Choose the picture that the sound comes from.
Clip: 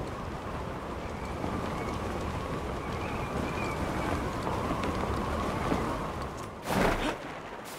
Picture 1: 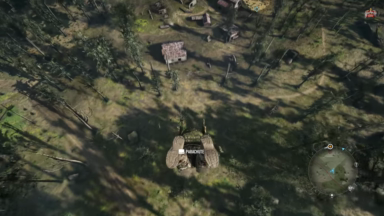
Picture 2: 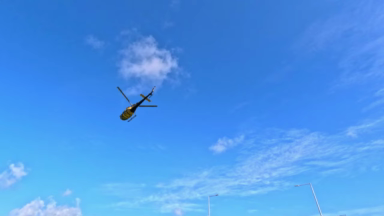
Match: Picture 1